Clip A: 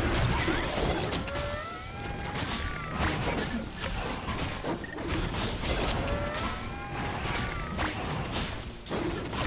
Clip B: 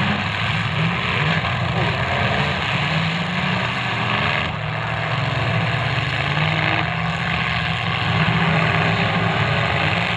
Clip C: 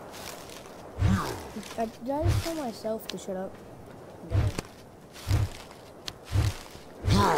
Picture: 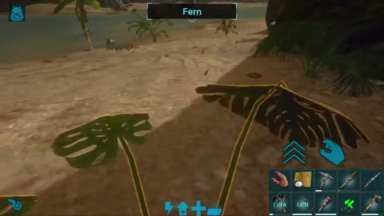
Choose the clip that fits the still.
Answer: C